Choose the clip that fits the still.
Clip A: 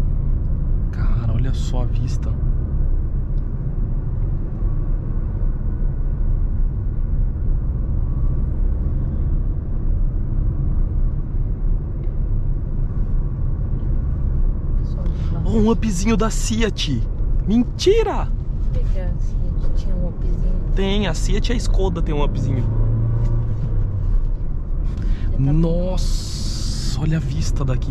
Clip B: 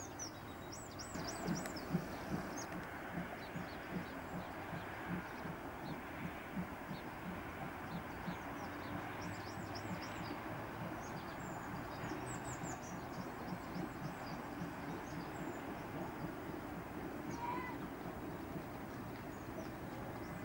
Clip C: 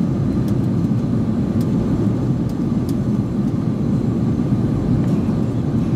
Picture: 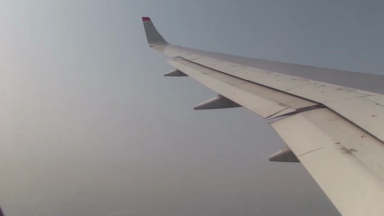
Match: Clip C